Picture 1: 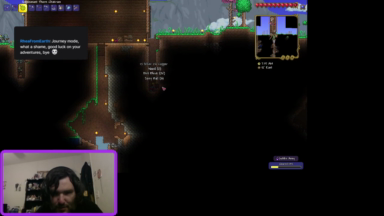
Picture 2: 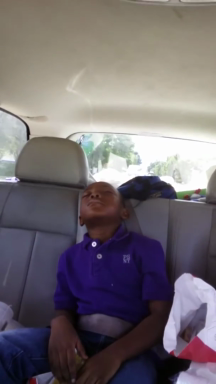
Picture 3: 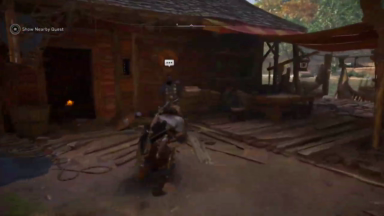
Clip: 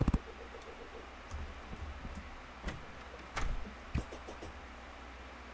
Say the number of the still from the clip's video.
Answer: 1